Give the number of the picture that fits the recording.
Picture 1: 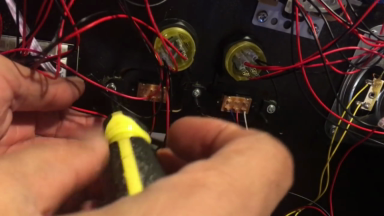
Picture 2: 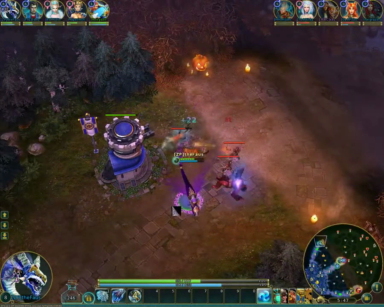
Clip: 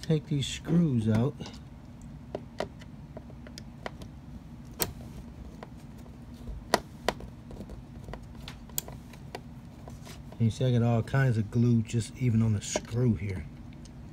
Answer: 1